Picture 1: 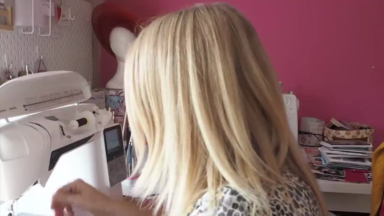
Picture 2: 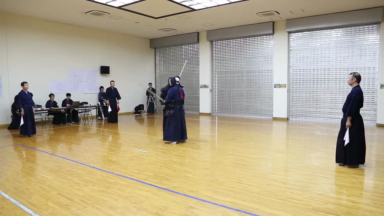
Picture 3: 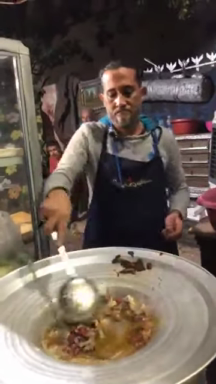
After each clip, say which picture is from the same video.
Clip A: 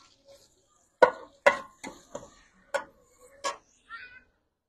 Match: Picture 3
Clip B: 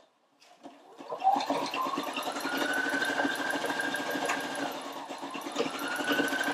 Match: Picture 1